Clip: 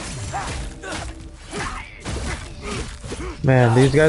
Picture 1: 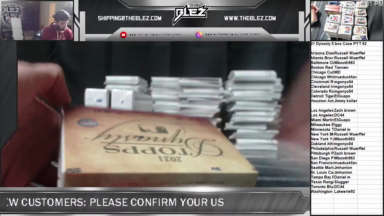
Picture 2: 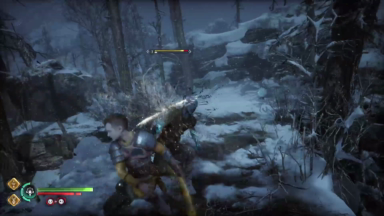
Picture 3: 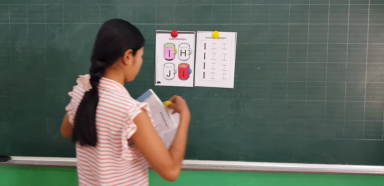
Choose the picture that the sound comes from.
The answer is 2